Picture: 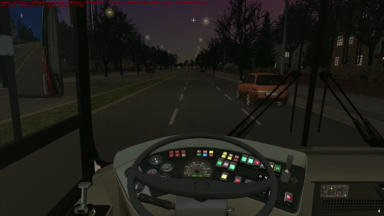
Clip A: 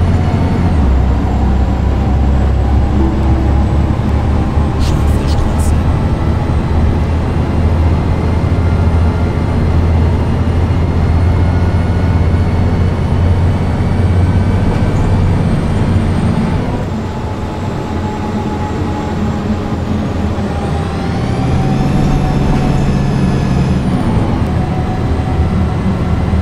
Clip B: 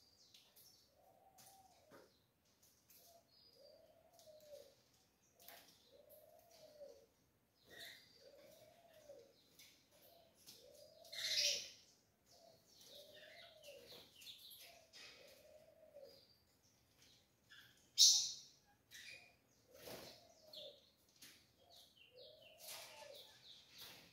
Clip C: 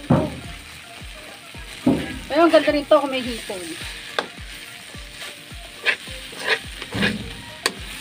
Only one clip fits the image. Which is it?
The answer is A